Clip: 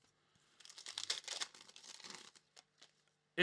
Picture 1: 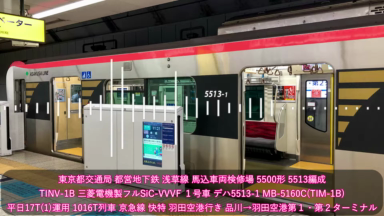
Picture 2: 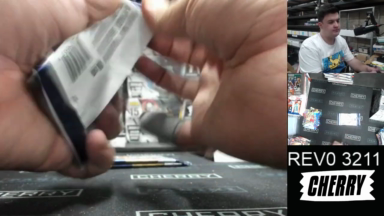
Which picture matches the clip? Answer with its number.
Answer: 2